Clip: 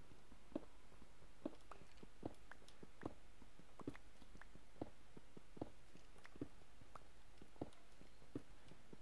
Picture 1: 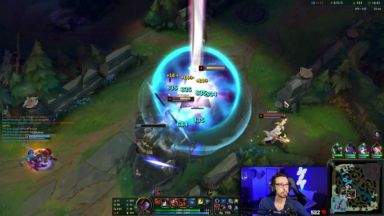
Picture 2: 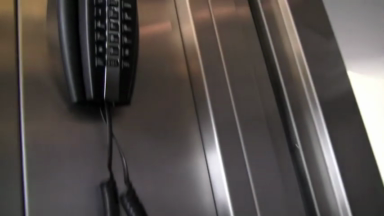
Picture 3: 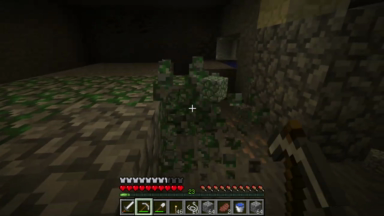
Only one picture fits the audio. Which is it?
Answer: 3